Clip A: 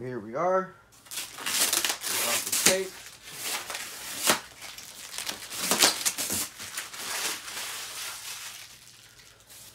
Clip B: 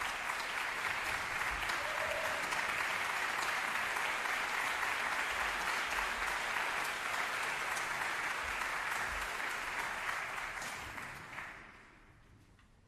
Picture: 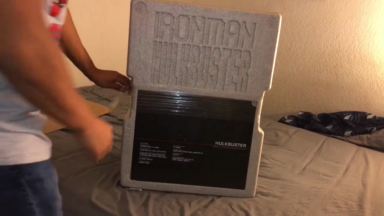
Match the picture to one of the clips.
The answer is A